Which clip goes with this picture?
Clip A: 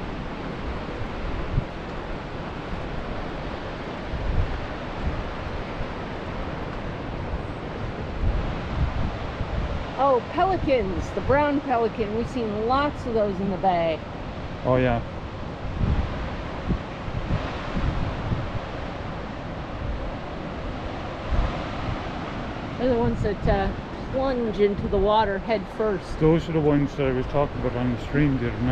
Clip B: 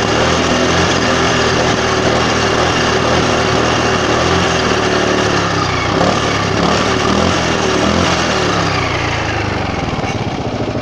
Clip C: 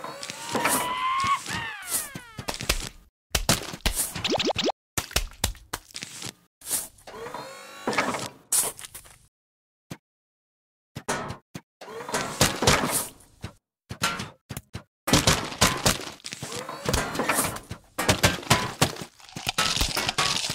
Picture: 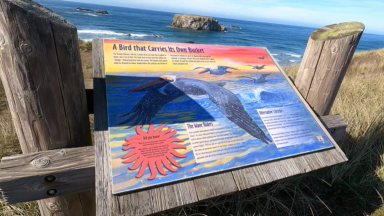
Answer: A